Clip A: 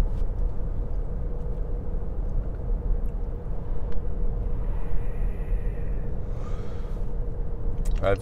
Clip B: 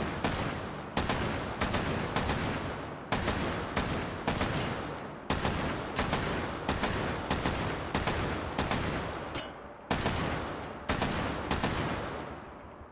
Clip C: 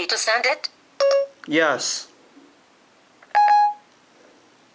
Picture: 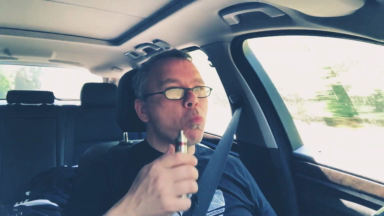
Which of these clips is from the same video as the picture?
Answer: A